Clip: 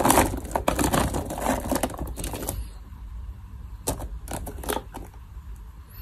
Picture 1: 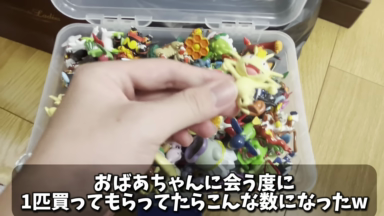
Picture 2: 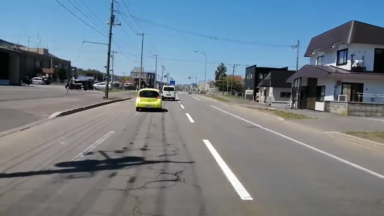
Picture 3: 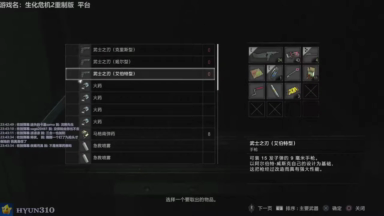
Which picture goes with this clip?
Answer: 1